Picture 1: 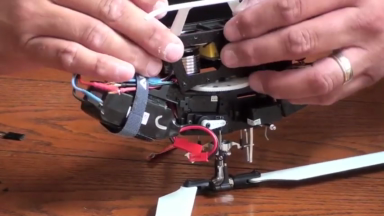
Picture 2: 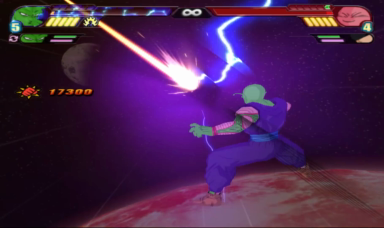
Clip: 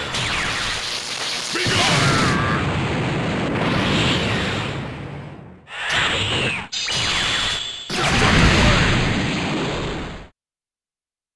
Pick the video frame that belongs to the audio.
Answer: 2